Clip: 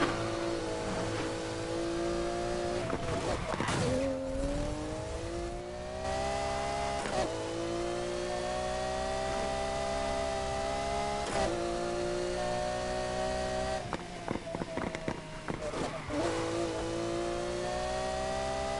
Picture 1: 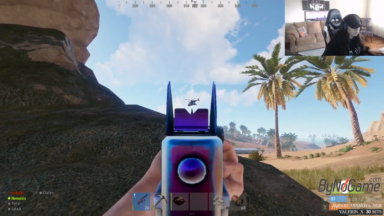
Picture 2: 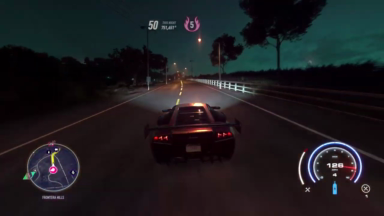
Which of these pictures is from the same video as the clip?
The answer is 2